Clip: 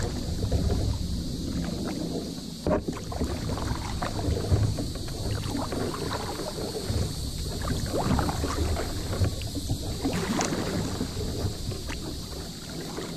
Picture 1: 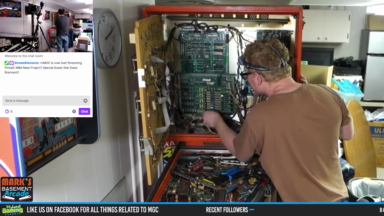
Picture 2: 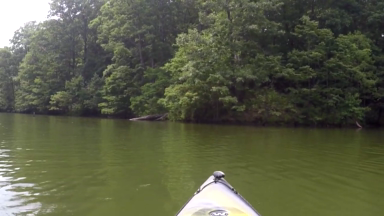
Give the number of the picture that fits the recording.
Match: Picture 2